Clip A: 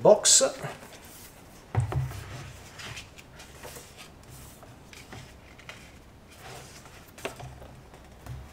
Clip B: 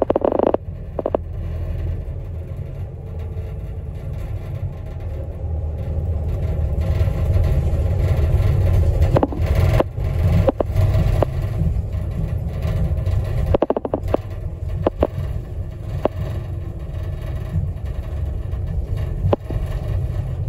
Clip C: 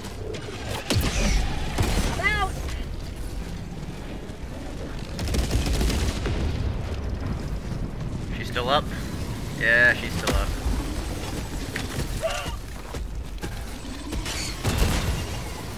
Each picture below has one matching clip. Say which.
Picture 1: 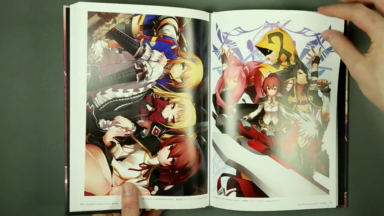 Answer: A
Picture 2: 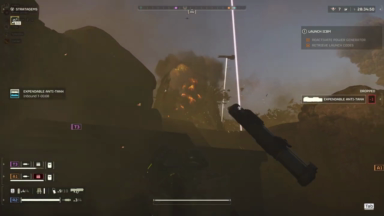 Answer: C